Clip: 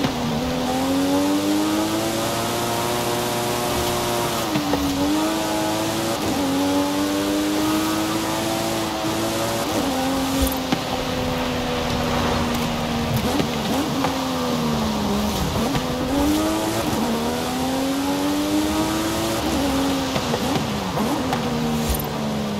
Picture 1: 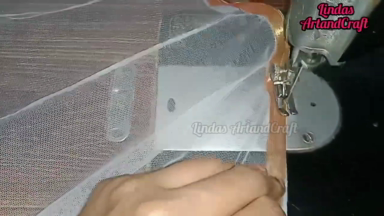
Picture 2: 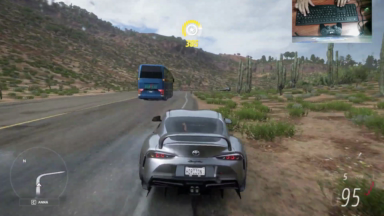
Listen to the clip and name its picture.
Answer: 2